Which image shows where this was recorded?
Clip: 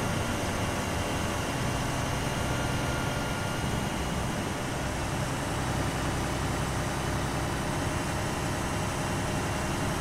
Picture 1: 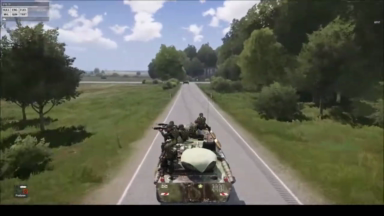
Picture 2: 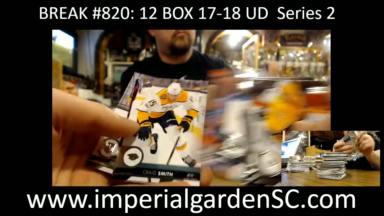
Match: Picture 1